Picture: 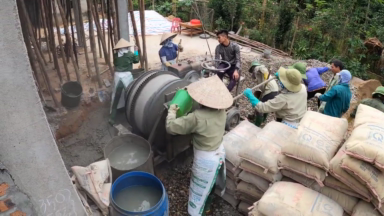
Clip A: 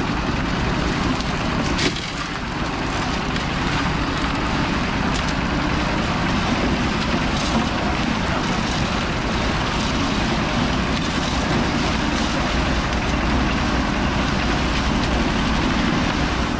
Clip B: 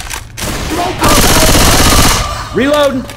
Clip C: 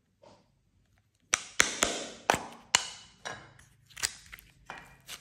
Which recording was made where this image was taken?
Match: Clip A